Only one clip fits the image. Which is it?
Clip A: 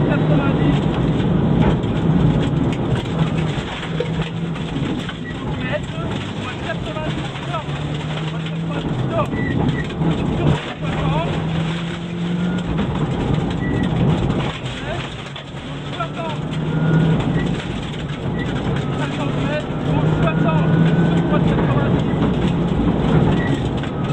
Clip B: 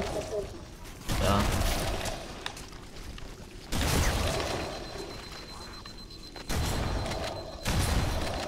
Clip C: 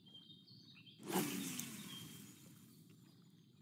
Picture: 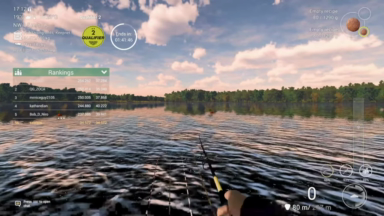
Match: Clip C